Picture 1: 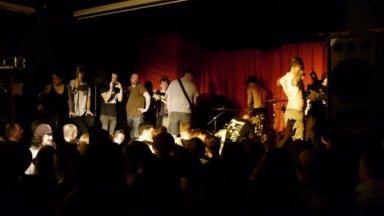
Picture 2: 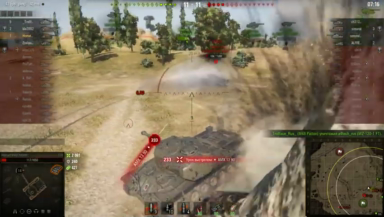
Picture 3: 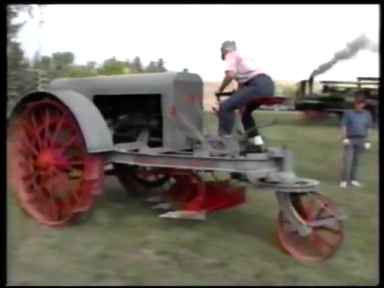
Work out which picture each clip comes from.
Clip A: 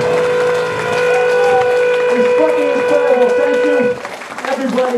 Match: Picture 1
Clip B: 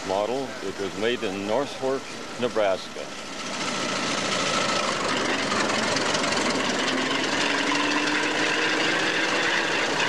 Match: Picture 3